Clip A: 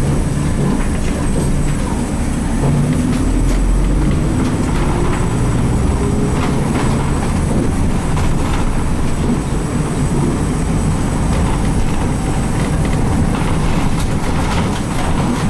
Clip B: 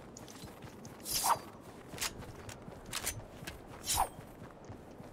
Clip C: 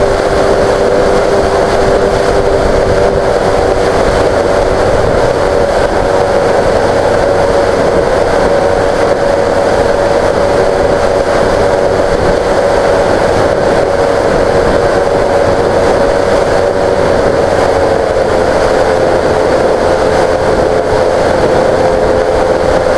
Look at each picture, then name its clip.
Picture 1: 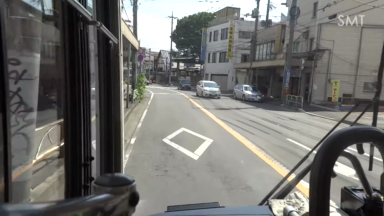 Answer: A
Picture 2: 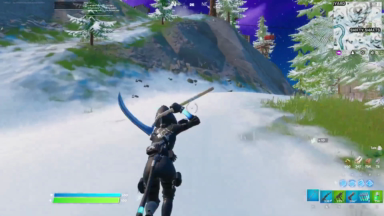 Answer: B